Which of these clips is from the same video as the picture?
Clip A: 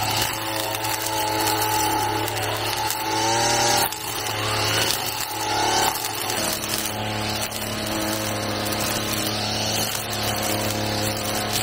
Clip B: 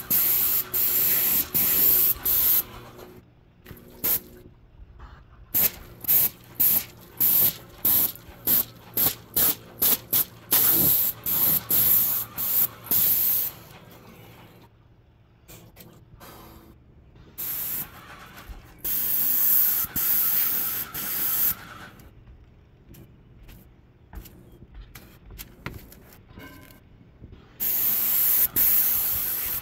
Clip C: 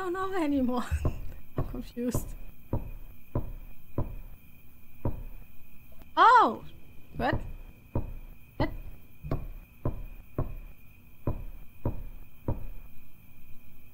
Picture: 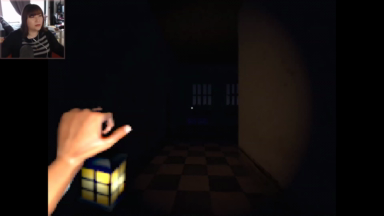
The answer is C